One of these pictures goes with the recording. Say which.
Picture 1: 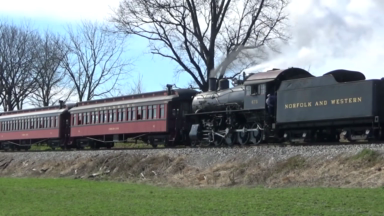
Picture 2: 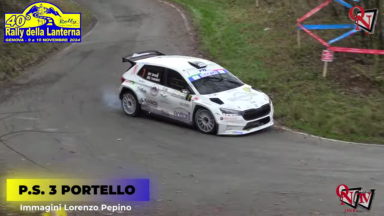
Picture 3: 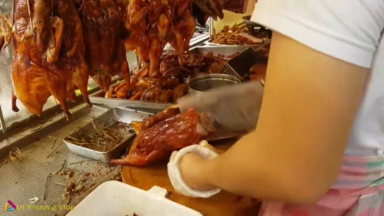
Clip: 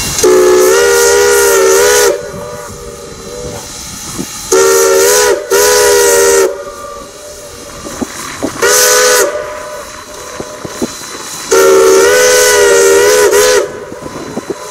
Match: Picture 1